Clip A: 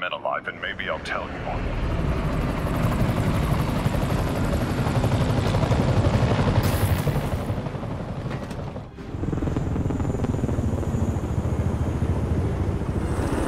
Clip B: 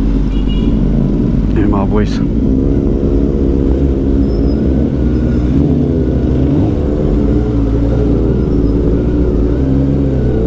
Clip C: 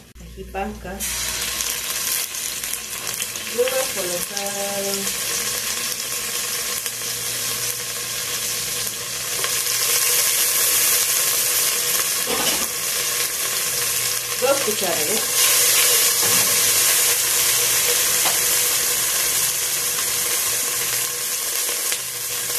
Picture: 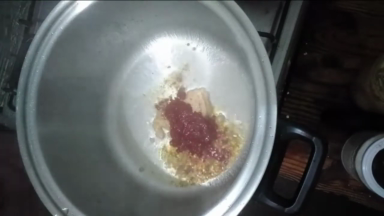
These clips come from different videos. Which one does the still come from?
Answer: C